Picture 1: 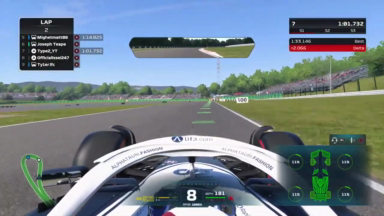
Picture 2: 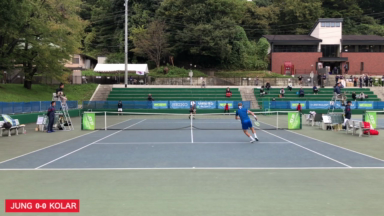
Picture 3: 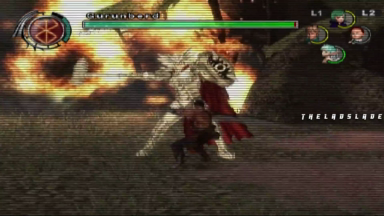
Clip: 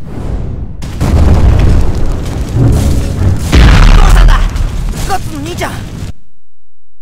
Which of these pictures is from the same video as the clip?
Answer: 3